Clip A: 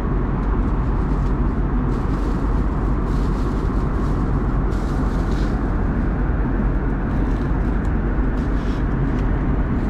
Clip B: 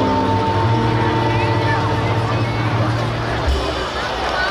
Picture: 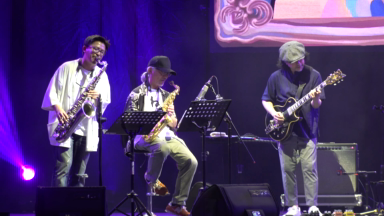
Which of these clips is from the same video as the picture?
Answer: B